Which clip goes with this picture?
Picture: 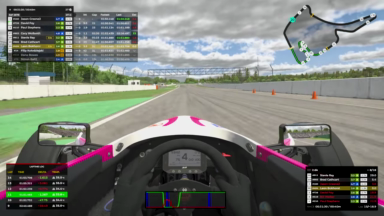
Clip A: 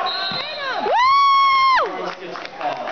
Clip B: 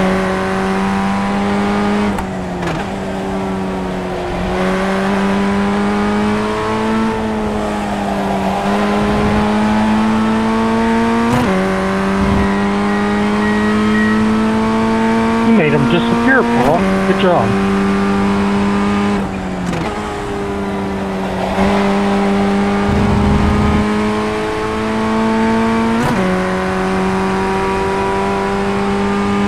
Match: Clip B